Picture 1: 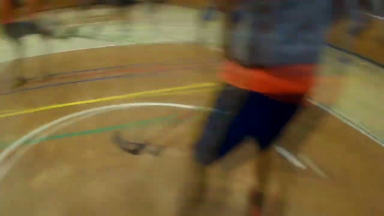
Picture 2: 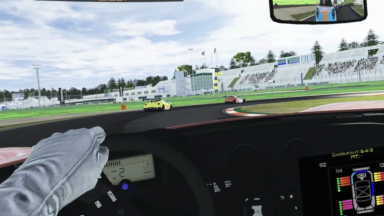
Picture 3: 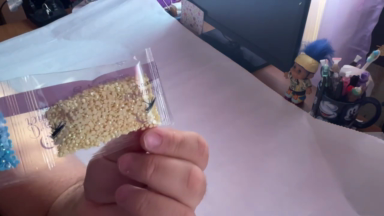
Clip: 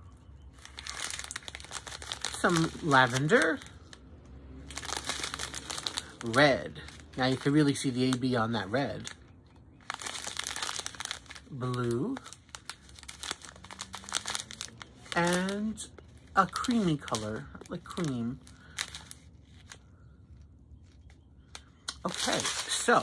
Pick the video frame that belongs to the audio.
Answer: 3